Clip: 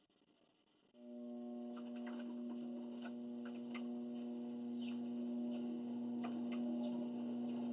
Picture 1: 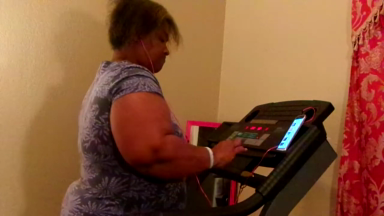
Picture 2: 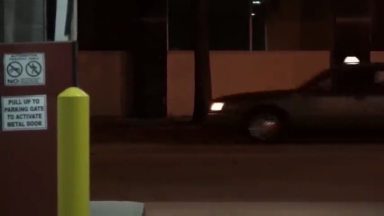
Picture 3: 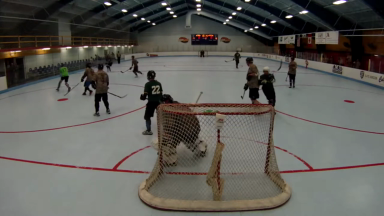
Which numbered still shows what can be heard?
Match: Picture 1